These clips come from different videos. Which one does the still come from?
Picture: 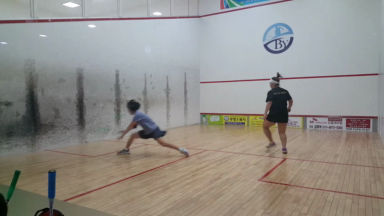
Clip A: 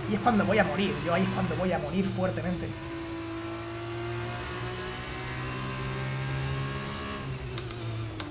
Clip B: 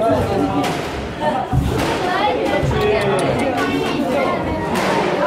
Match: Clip B